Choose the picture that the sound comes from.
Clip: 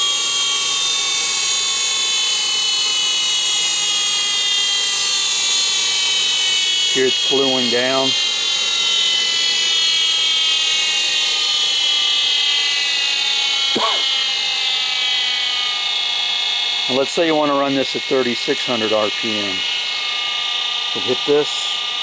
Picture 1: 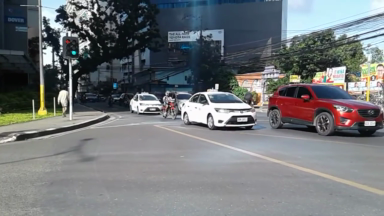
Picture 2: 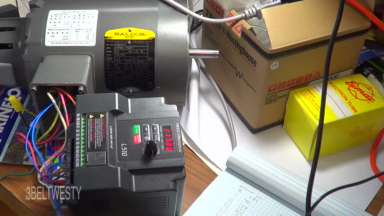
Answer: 2